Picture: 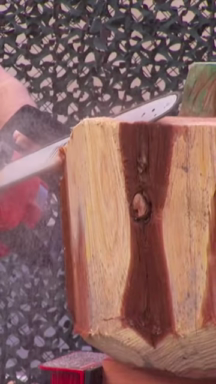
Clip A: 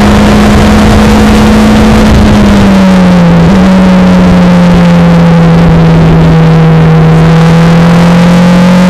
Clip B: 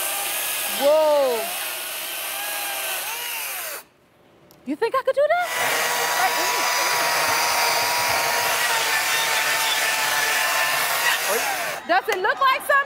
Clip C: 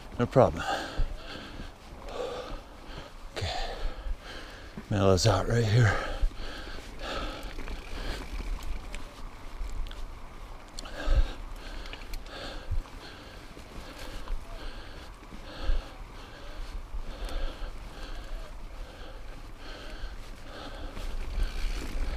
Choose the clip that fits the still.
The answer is B